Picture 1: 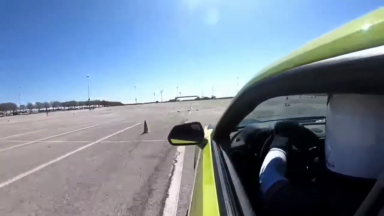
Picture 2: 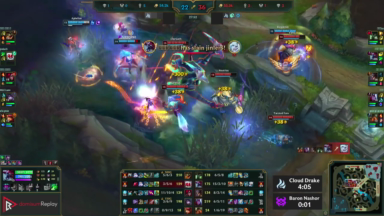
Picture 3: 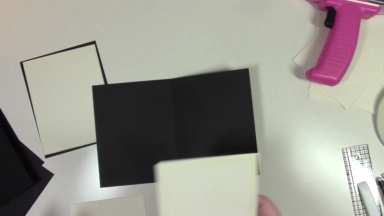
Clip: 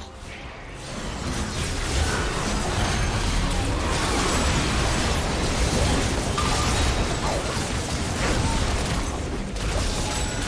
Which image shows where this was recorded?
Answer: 2